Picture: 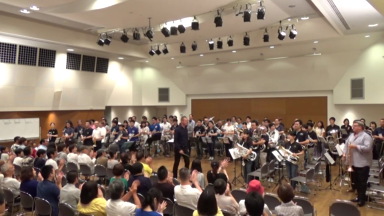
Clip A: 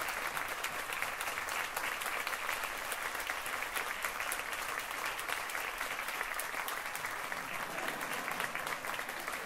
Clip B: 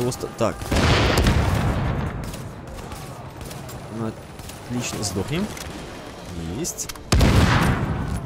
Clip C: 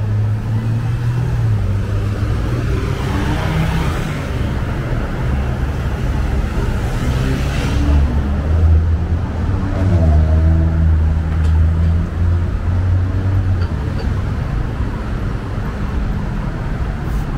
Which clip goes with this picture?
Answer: A